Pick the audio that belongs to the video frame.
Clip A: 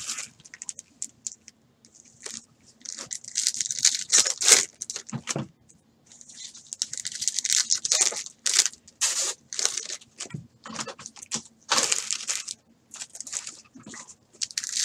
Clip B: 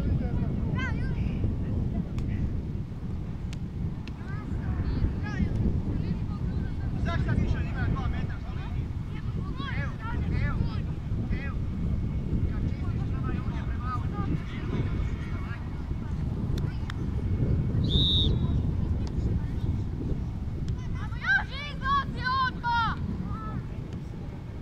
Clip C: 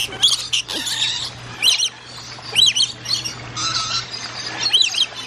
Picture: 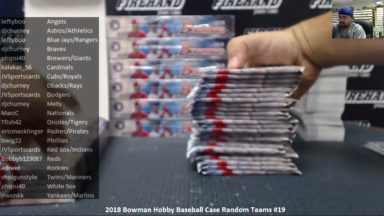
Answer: A